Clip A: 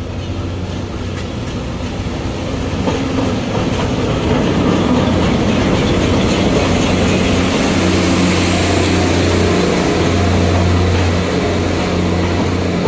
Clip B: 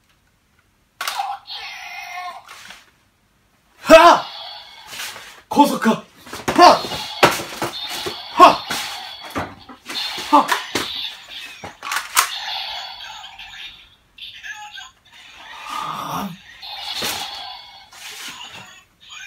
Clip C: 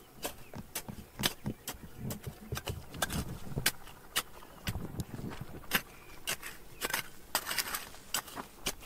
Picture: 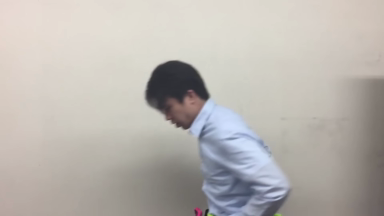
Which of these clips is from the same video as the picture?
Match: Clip B